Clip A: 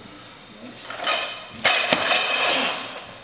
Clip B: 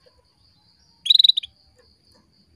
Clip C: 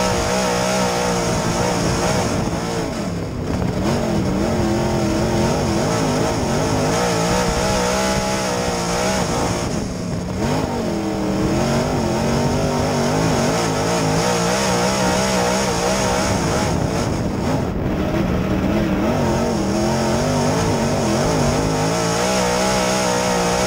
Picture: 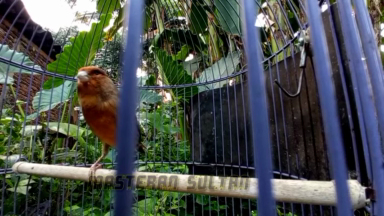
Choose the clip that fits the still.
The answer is B